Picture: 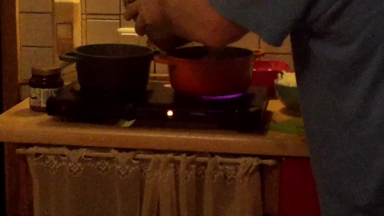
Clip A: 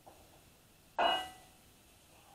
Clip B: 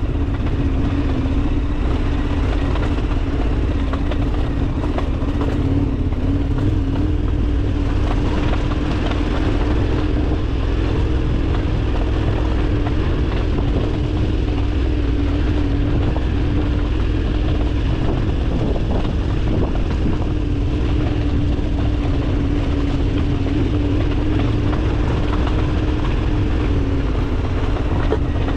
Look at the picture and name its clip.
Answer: A